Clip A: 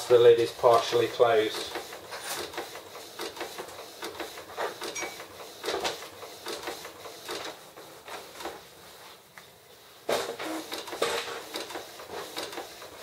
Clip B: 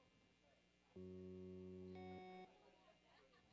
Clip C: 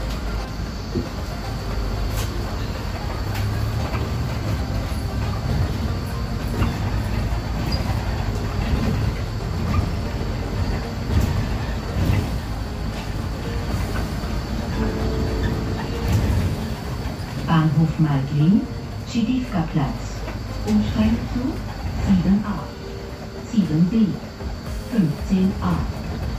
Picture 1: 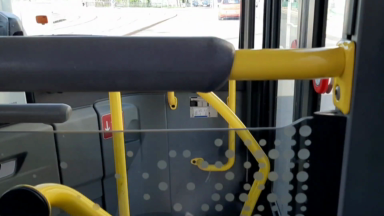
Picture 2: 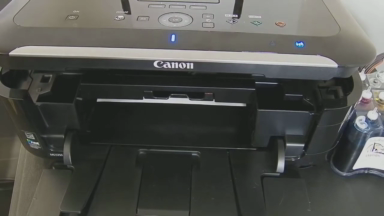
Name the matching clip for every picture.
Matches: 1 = C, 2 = A